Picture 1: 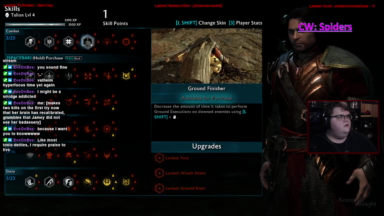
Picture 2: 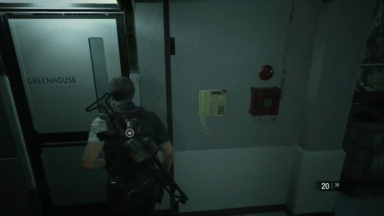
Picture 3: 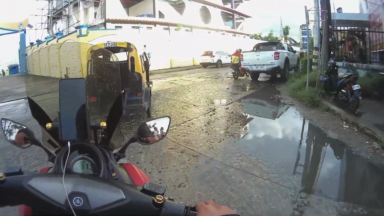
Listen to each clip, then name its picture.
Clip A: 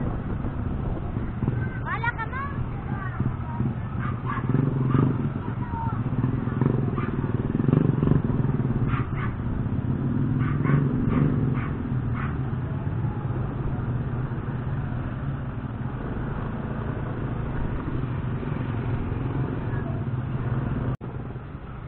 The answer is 3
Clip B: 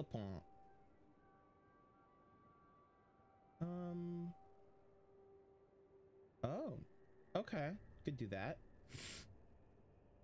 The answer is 1